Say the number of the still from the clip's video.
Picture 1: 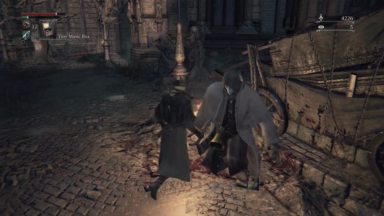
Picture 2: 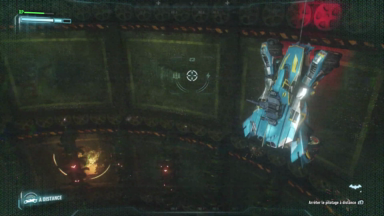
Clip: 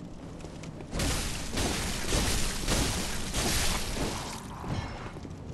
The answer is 1